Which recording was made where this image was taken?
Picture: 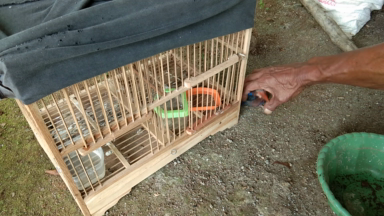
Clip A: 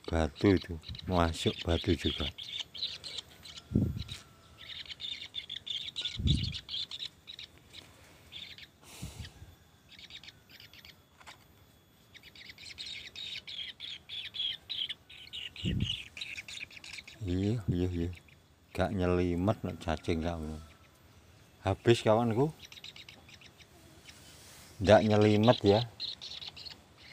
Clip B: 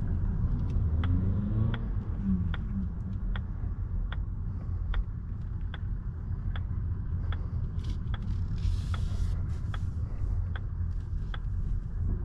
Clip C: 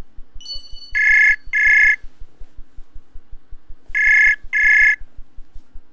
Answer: A